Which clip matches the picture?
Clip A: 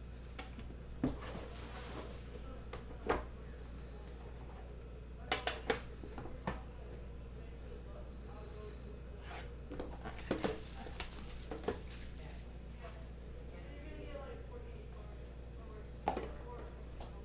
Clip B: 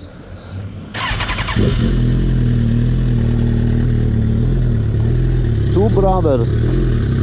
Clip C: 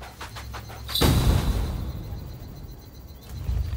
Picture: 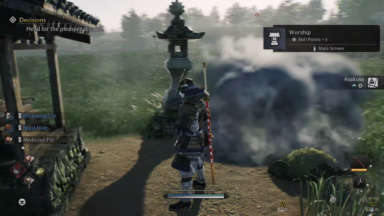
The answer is C